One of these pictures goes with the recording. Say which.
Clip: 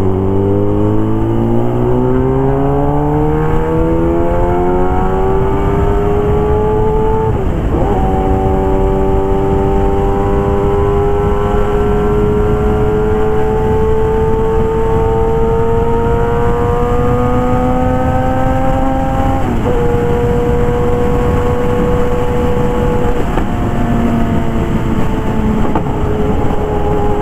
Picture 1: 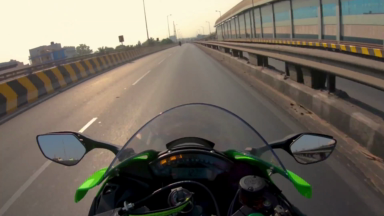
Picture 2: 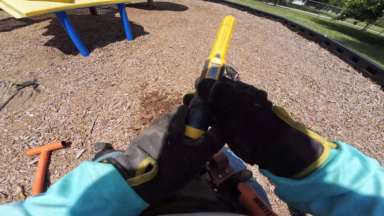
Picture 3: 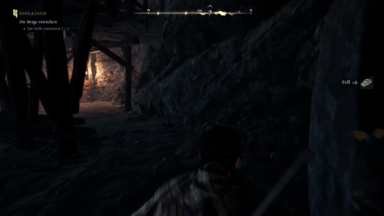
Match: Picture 1